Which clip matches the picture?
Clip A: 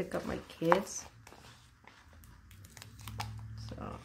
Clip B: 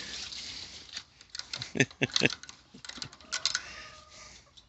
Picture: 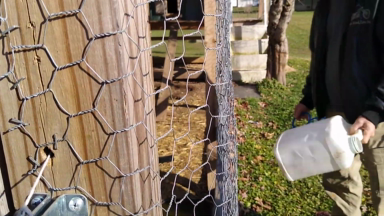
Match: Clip B